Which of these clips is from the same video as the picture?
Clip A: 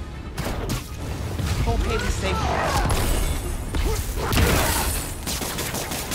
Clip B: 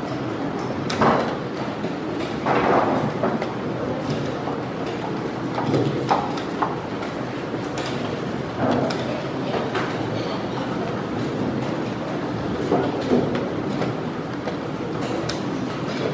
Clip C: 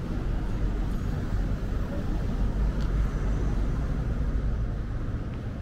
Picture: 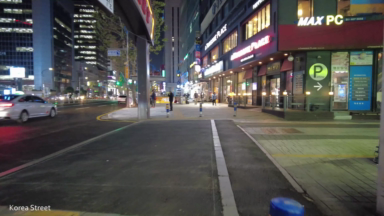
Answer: C